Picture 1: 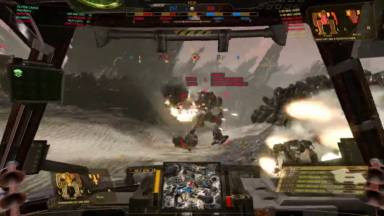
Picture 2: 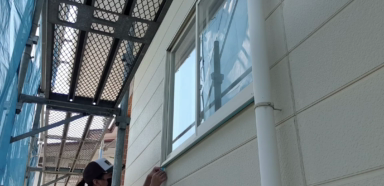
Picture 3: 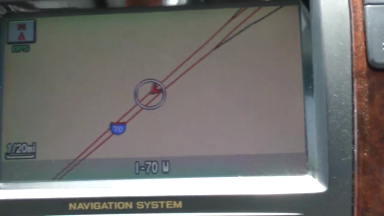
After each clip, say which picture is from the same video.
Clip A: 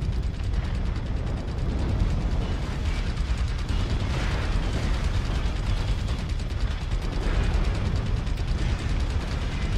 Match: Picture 1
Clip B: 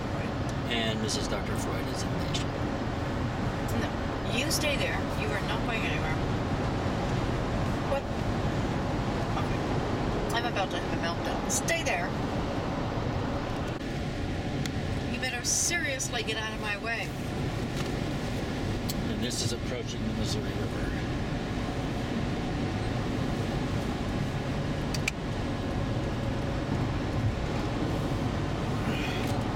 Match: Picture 3